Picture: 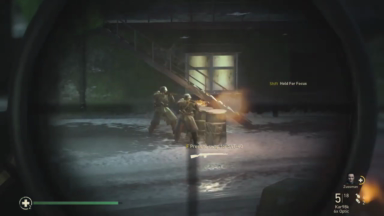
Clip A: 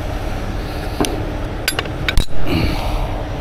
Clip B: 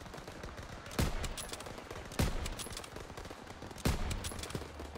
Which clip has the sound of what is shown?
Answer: B